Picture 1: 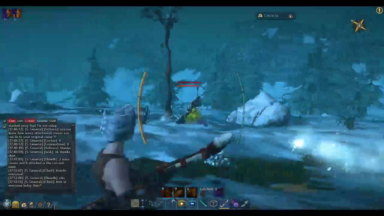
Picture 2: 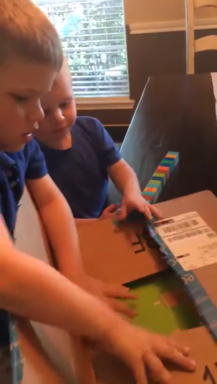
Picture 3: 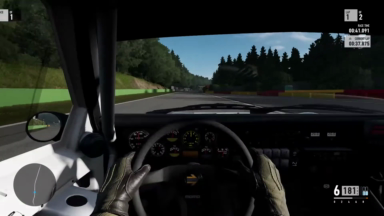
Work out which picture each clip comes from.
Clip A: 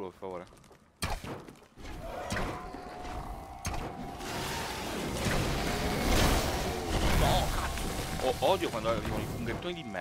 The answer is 1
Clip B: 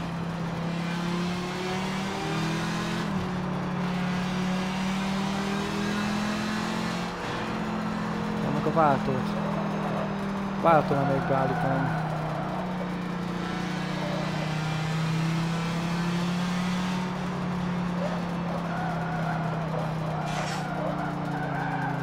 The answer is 3